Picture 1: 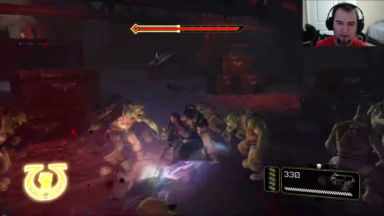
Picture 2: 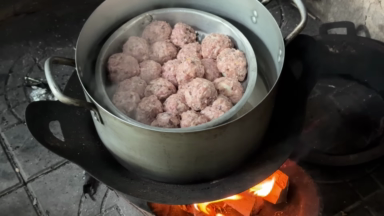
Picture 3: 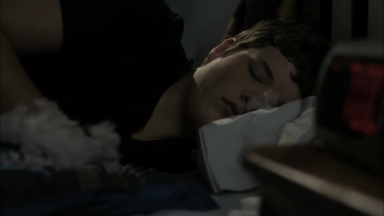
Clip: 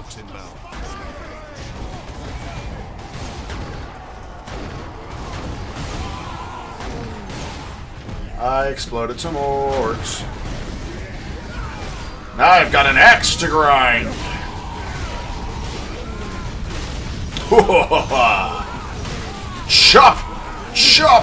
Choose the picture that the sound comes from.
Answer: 1